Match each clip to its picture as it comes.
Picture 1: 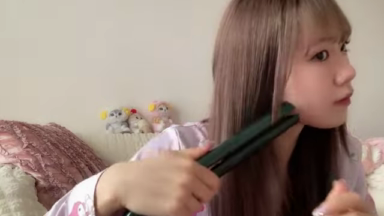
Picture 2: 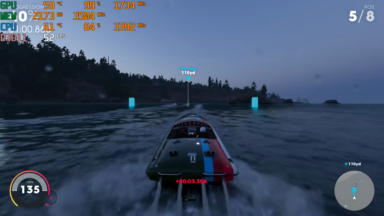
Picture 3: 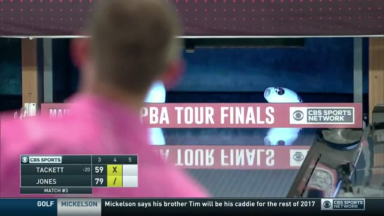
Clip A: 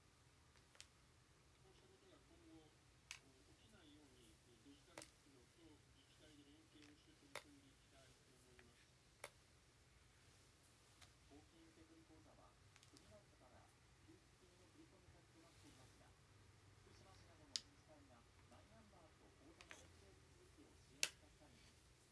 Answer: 1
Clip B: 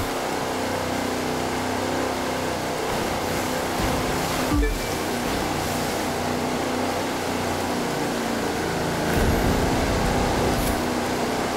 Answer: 2